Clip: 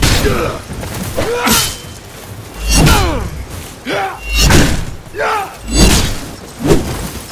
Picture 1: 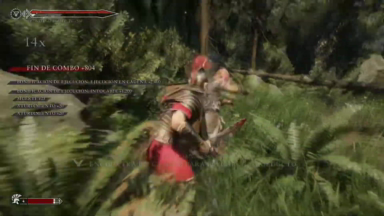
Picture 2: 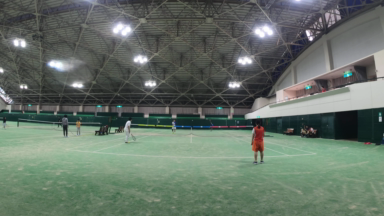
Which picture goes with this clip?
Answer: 1